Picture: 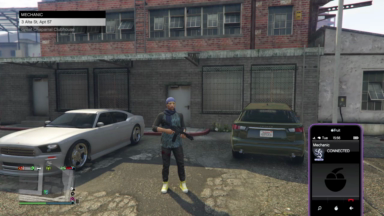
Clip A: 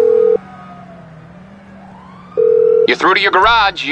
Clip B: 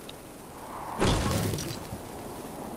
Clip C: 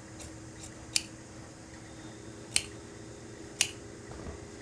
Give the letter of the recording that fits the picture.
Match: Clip A